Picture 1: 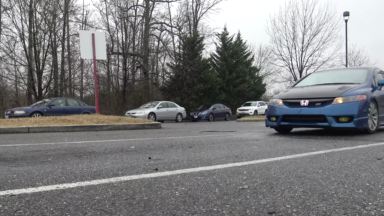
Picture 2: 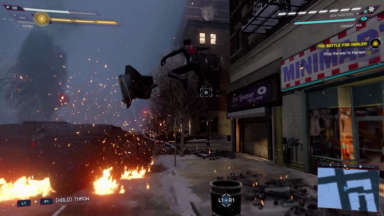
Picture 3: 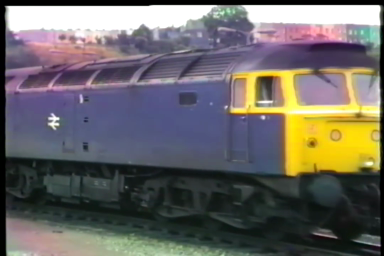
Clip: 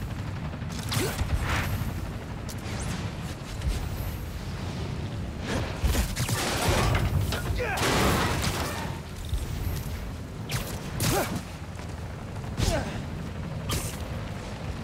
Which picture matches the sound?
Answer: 2